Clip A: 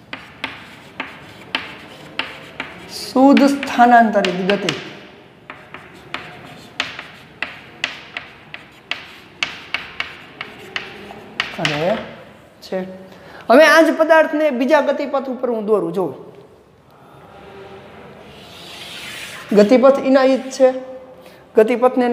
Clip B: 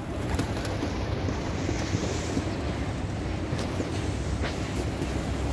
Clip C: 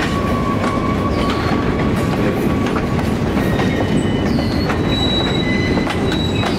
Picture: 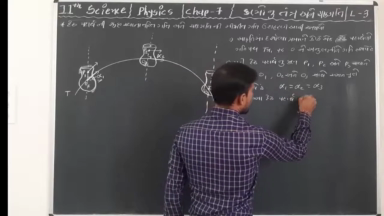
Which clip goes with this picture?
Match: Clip A